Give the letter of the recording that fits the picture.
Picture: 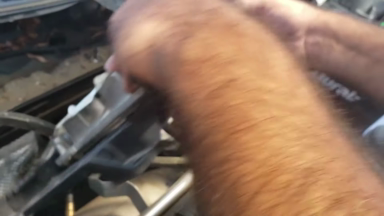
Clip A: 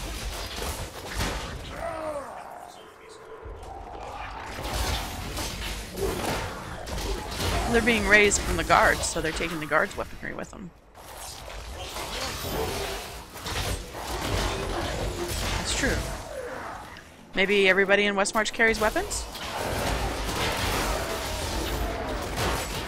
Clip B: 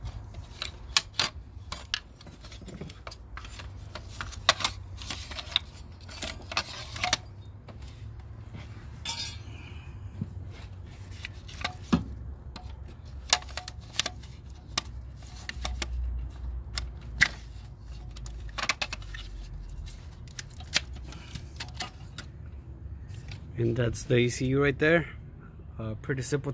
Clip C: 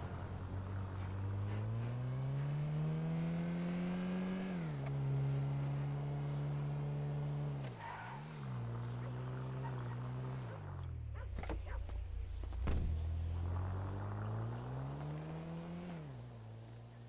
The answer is B